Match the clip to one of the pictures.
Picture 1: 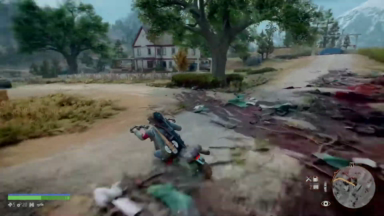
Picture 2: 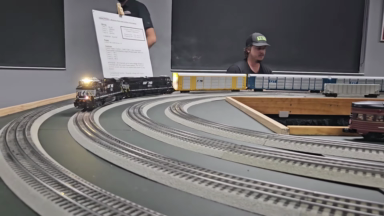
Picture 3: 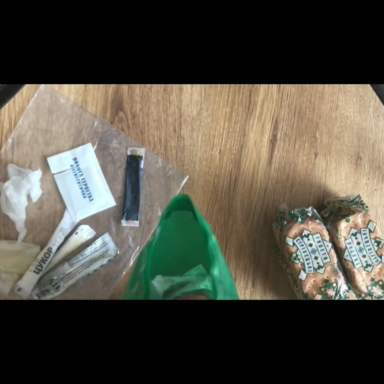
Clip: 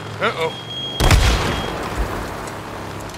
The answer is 1